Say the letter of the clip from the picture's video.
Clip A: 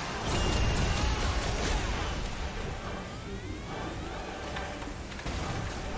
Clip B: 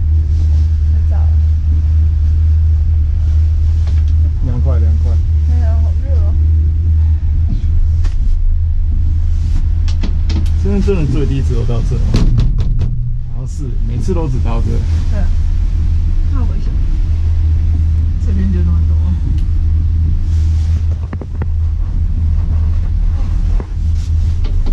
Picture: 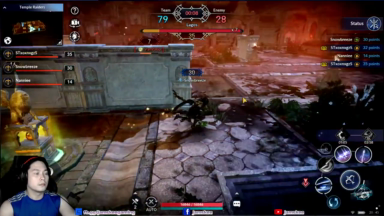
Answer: A